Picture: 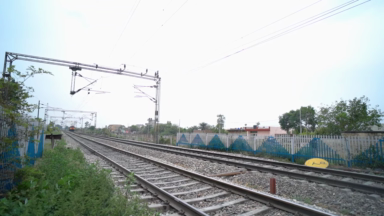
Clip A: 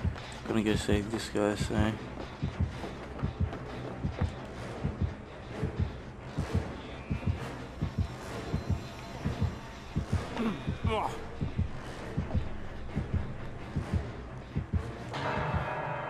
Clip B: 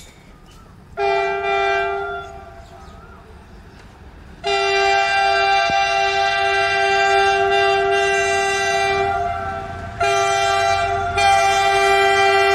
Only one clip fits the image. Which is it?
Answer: B